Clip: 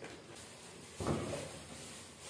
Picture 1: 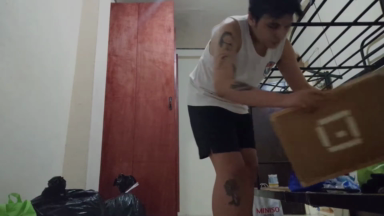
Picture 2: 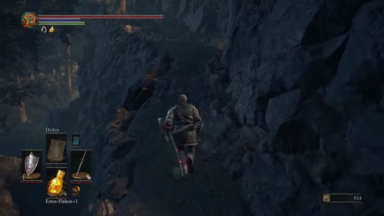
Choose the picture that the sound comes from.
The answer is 1